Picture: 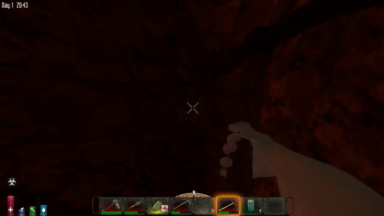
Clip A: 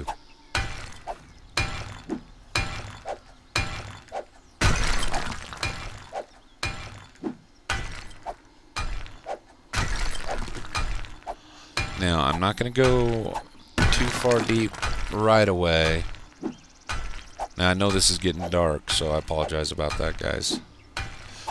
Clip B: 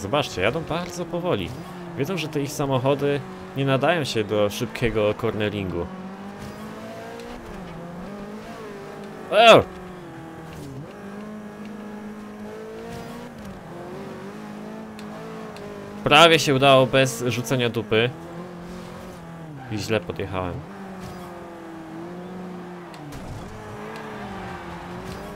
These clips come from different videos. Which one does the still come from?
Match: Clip A